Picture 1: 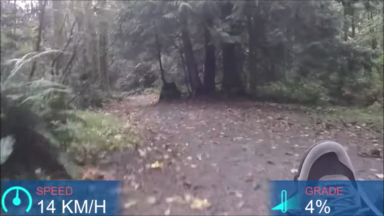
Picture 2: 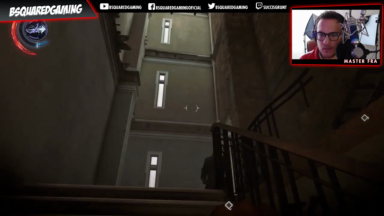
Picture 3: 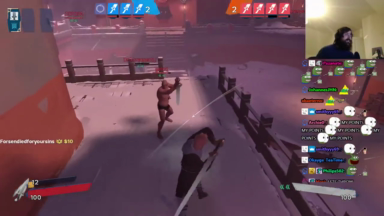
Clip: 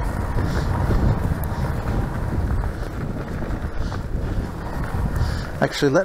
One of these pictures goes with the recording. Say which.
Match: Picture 1